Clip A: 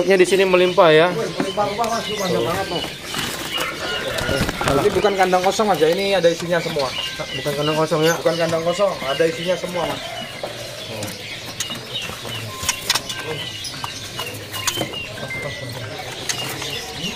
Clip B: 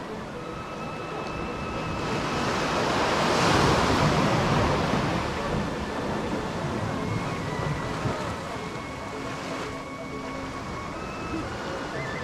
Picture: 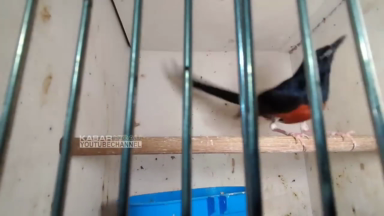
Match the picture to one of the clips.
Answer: A